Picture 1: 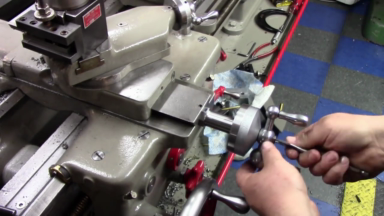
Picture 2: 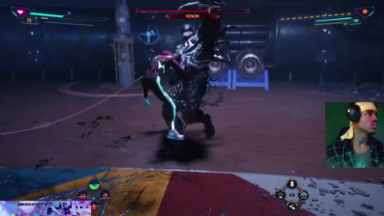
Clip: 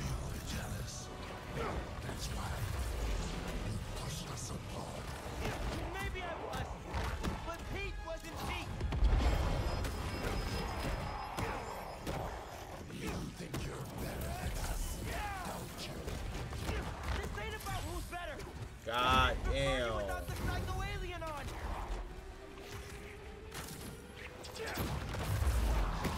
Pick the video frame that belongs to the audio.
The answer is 2